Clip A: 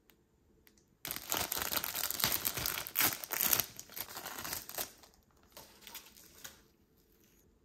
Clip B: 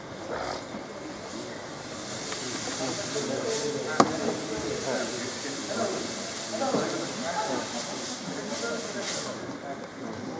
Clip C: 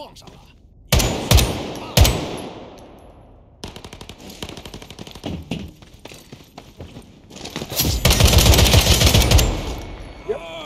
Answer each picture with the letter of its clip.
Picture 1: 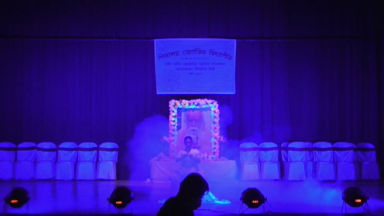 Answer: B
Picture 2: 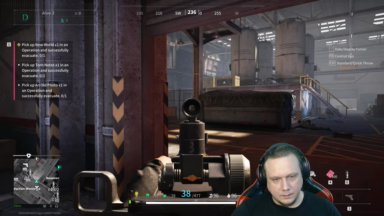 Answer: C